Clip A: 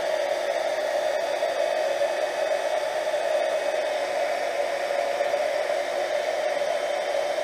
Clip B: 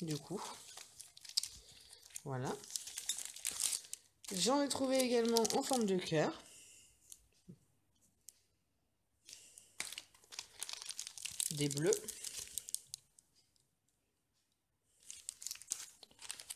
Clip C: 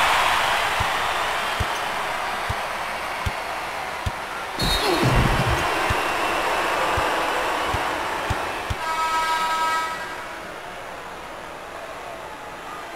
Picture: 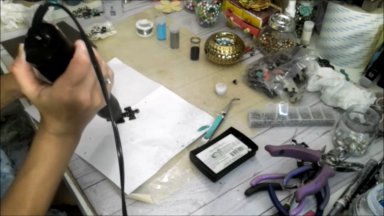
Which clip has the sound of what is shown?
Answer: A